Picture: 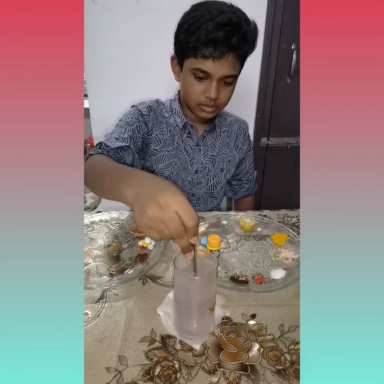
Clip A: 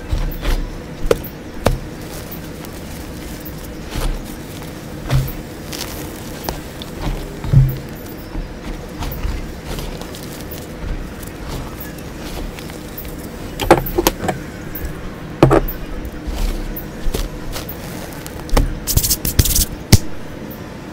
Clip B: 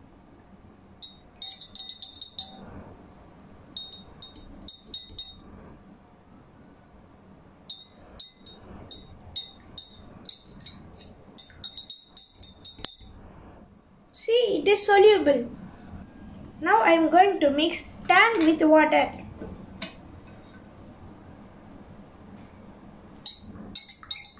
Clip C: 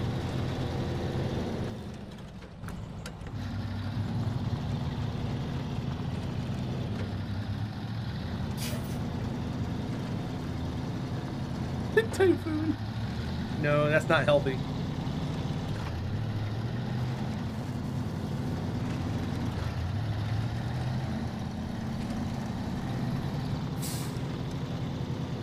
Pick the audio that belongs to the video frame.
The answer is B